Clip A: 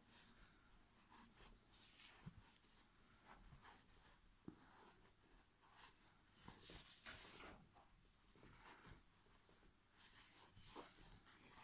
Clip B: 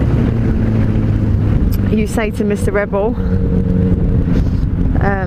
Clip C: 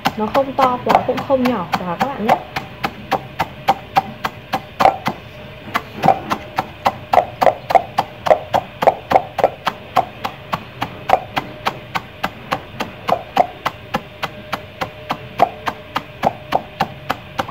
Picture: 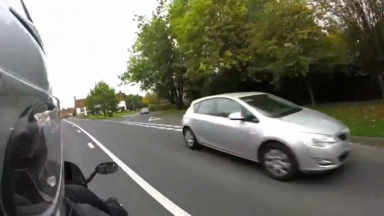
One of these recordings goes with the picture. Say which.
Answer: B